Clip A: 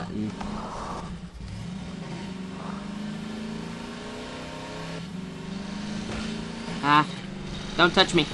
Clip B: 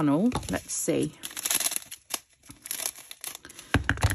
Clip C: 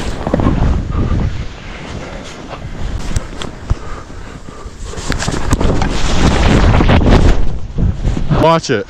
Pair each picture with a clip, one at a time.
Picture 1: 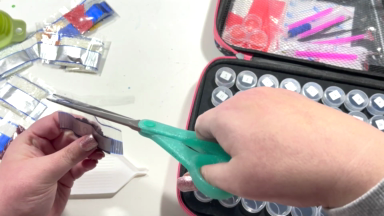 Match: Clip B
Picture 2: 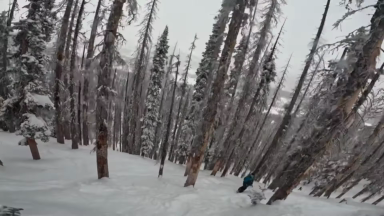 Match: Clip C